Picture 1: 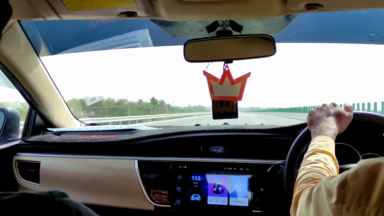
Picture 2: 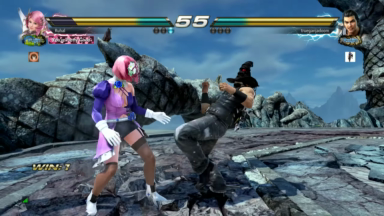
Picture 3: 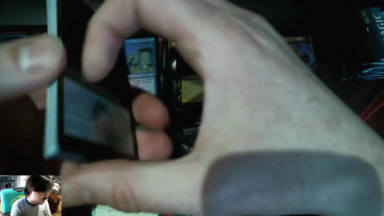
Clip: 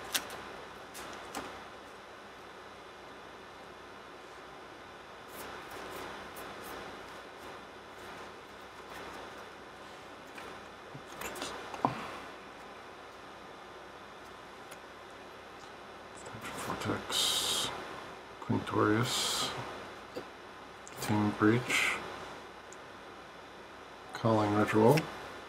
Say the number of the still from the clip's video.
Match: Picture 3